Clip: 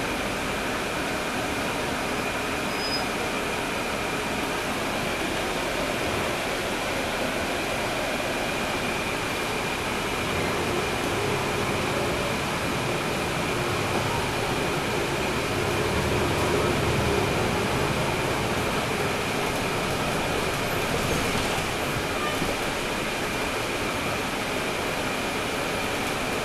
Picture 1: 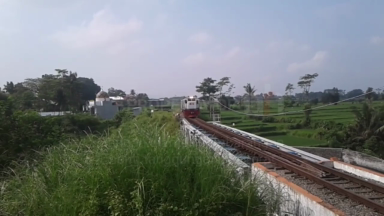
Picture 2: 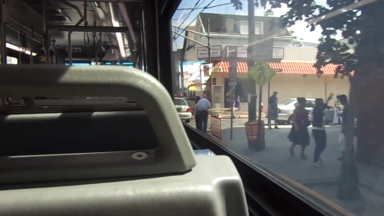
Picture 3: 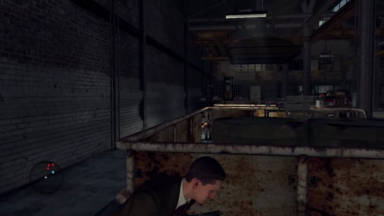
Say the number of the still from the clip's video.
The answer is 2